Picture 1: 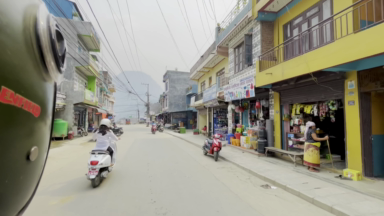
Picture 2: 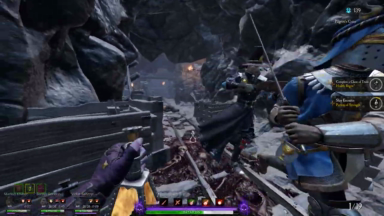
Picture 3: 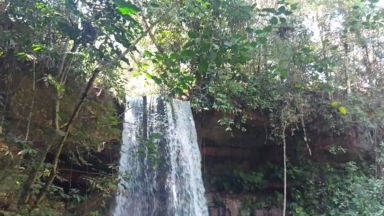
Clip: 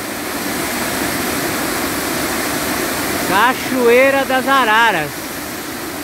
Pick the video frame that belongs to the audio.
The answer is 3